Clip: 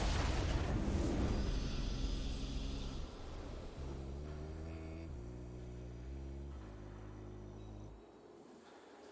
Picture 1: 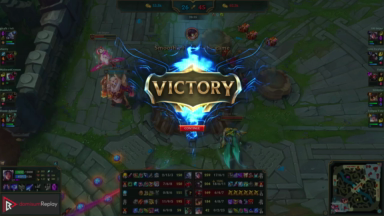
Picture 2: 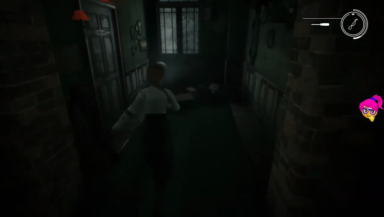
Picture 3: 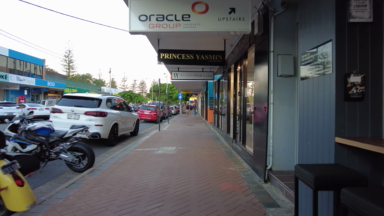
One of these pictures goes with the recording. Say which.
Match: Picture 1